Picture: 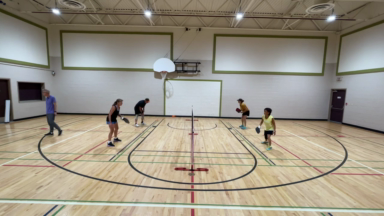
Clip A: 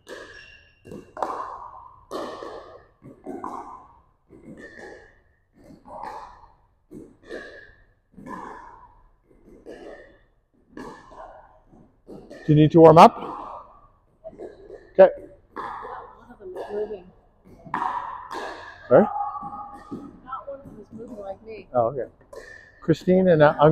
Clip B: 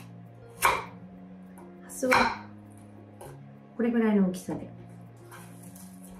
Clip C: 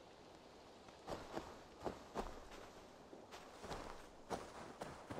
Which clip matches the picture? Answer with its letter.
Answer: A